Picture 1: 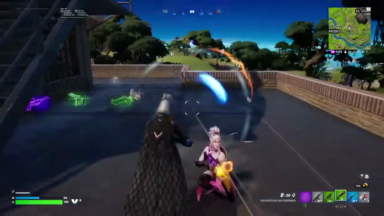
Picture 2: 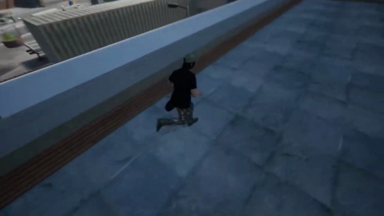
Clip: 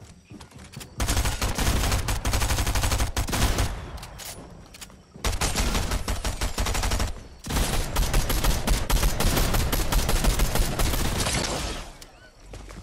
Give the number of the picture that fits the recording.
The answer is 1